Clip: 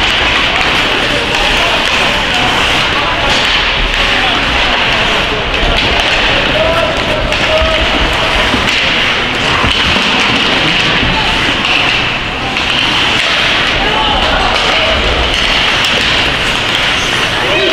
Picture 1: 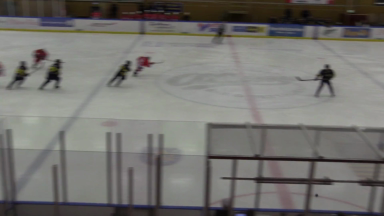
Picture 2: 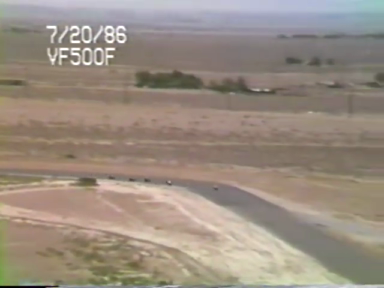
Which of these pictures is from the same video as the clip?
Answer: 1